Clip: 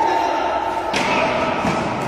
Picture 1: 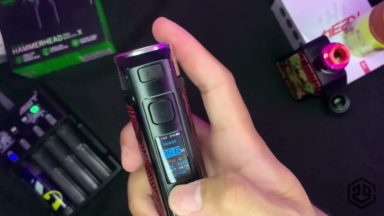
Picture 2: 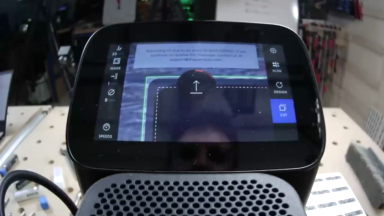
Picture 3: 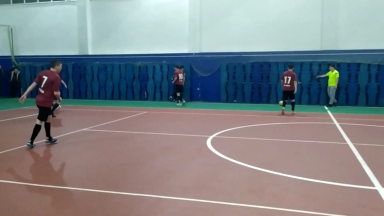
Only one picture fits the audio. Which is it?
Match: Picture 3